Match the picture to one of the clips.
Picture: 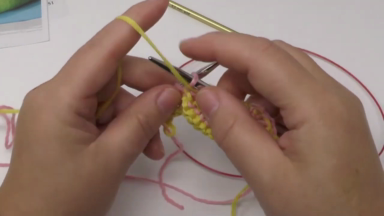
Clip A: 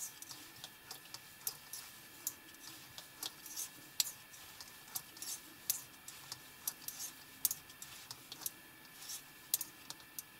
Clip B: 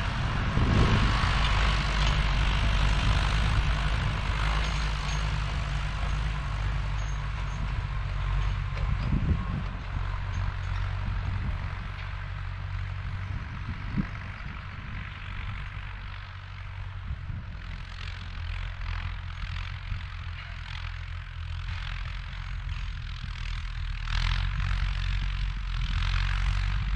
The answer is A